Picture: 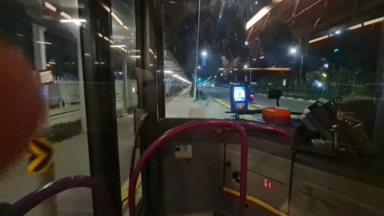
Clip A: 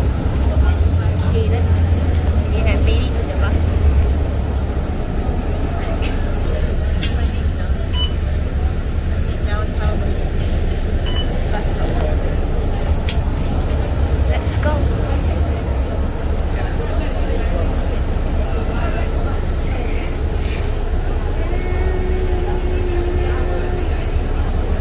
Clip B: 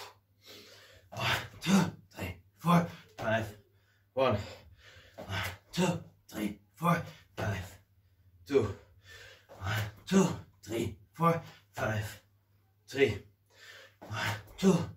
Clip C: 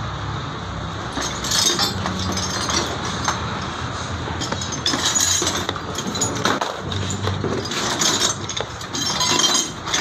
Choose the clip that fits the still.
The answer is A